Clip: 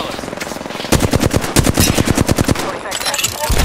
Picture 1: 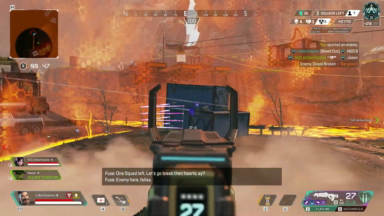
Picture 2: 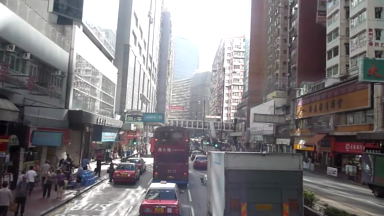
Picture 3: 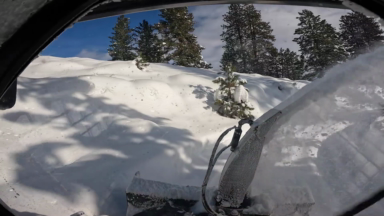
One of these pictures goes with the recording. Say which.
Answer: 1